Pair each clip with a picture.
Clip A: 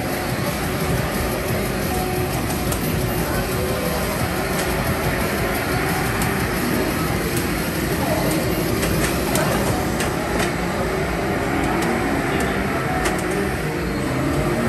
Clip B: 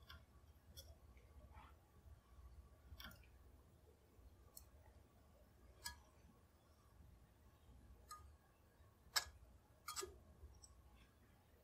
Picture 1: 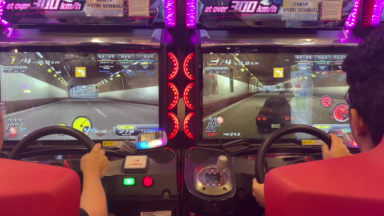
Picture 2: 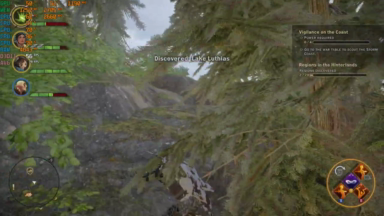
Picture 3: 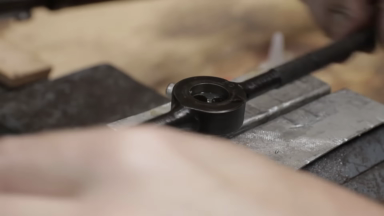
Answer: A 1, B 3